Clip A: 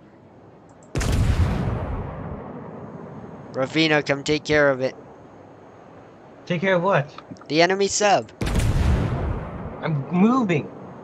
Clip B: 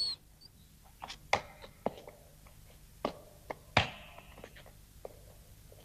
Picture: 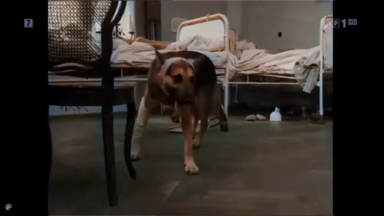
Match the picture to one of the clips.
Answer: B